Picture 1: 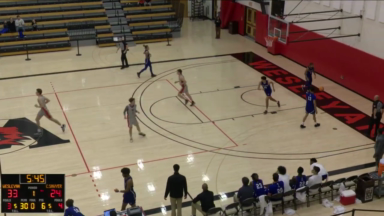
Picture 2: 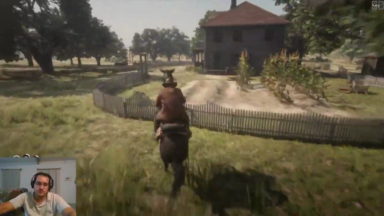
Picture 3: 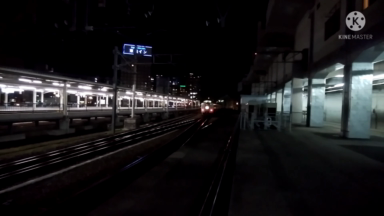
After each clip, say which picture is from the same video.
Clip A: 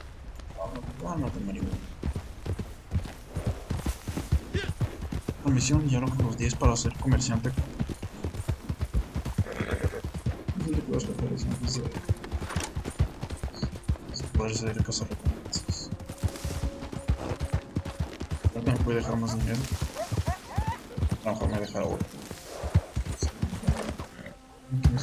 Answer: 2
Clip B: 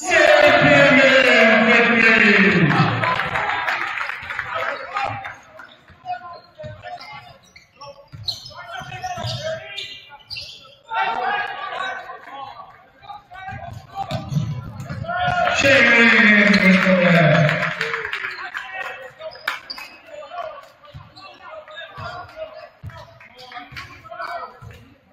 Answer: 1